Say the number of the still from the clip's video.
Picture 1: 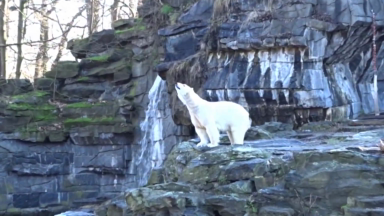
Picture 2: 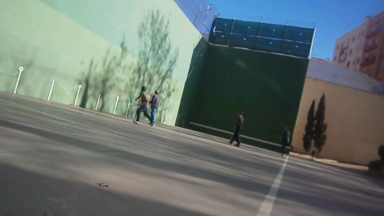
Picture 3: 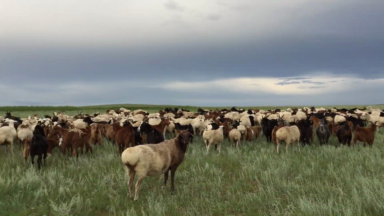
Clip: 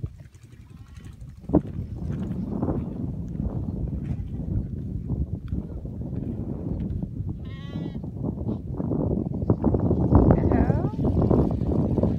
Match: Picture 3